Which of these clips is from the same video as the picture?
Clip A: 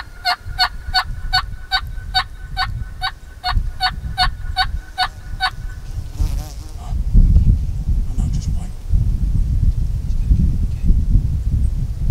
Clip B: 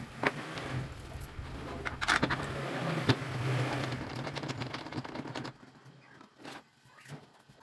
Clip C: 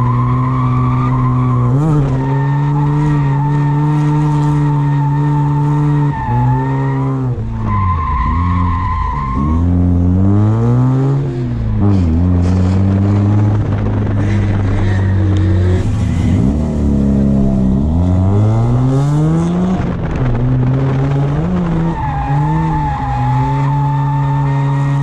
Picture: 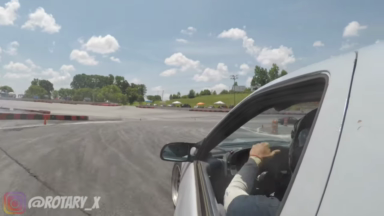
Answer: C